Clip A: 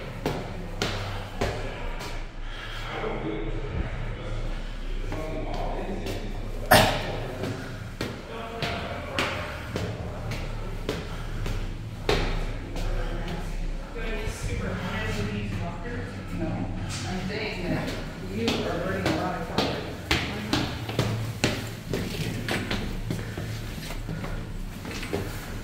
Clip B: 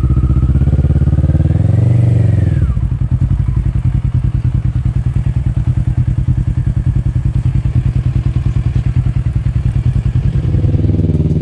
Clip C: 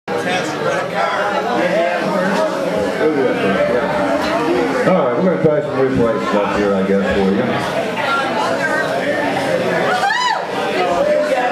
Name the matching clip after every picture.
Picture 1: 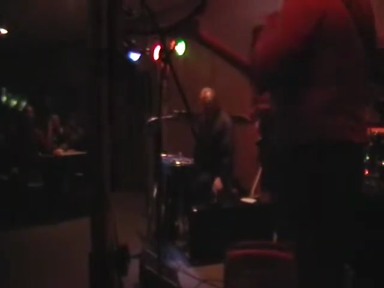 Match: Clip C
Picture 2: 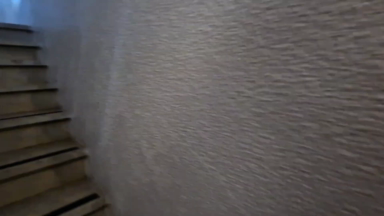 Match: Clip A